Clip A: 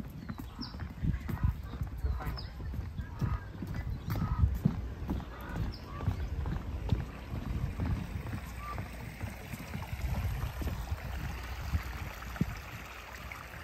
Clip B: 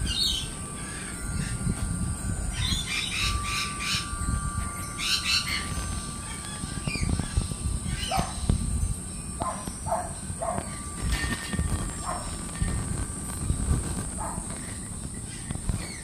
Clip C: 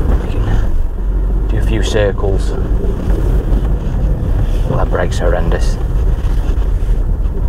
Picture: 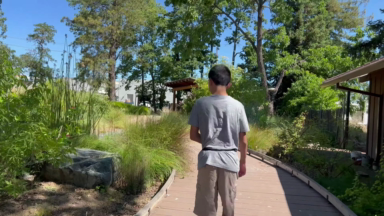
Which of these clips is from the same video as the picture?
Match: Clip A